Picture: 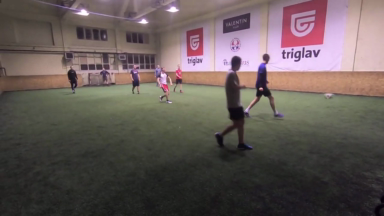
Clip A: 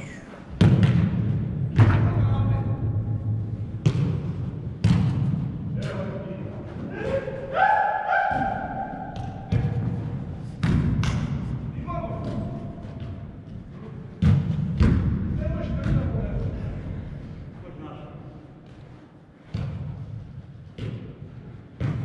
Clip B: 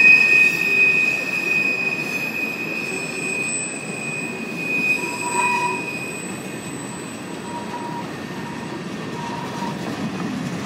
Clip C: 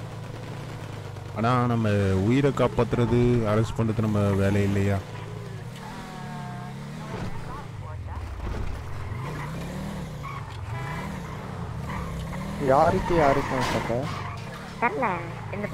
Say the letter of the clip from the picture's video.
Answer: A